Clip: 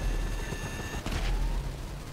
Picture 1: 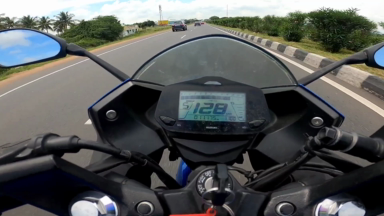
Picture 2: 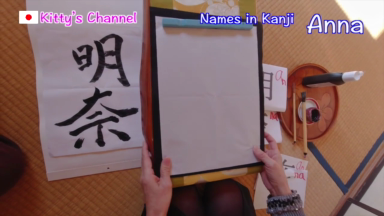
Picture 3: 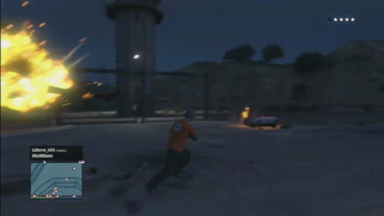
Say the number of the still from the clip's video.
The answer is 3